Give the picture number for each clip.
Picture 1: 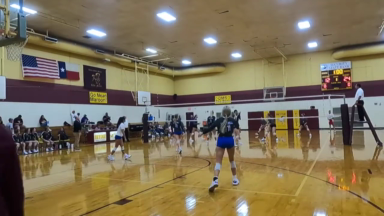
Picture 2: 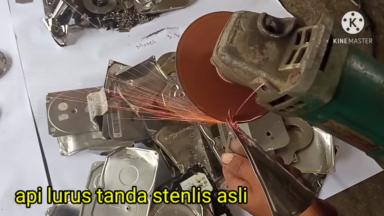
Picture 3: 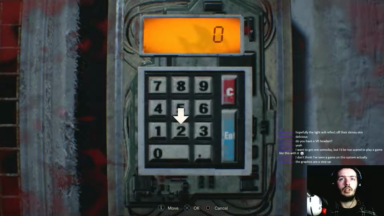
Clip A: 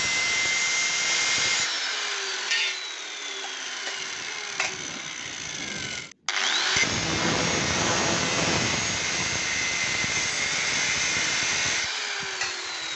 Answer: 2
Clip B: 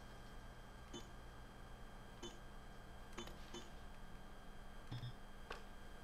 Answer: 3